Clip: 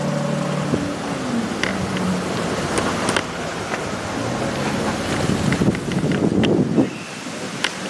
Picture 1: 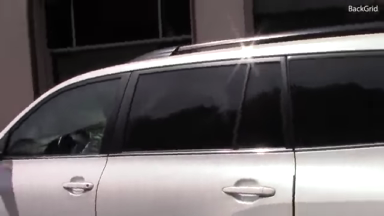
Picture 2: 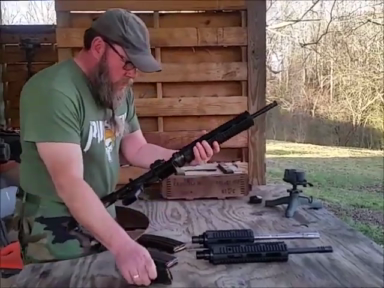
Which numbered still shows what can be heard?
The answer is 1